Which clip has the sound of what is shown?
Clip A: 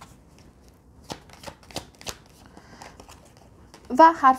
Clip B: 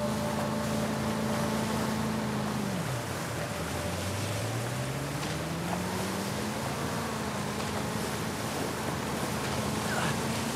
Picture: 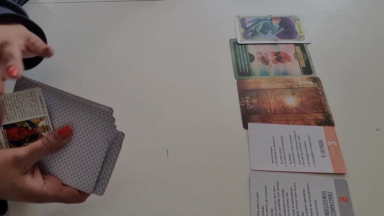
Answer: A